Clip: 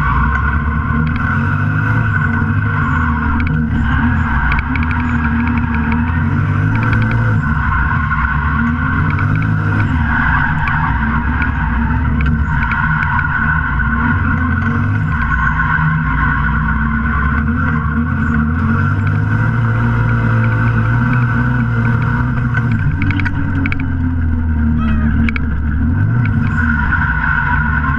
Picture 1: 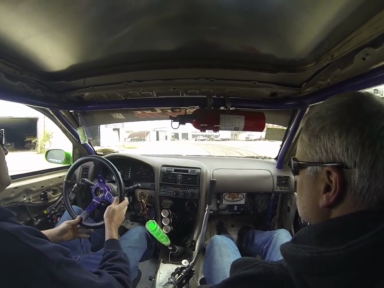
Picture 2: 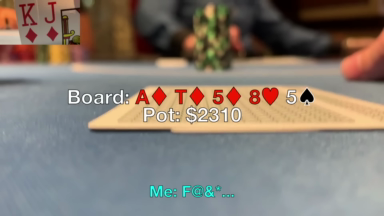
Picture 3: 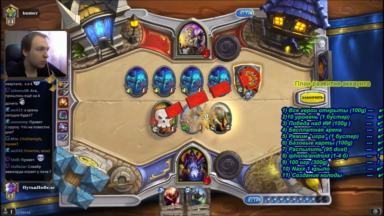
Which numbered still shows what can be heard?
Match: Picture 1